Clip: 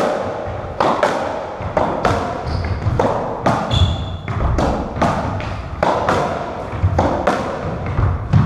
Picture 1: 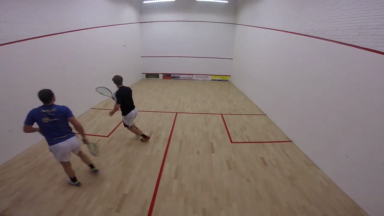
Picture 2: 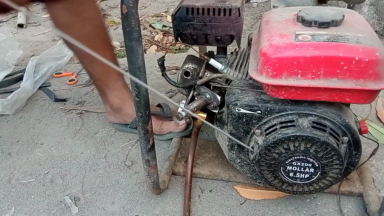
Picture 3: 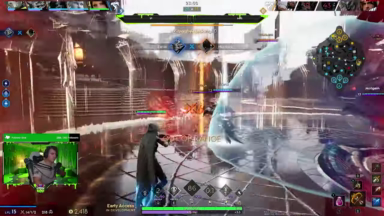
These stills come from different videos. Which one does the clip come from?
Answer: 1